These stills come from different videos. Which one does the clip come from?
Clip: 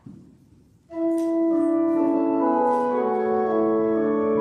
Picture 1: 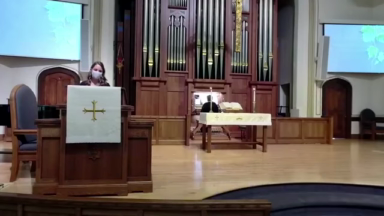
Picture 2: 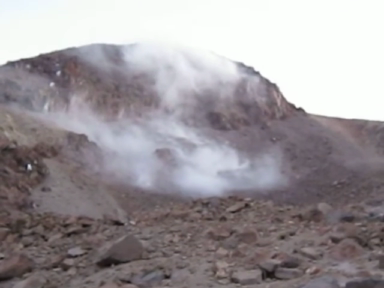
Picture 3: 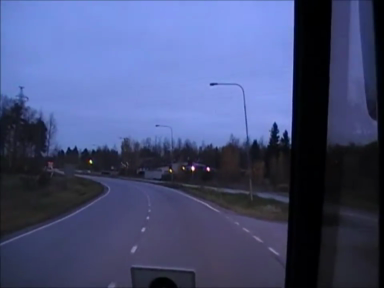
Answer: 1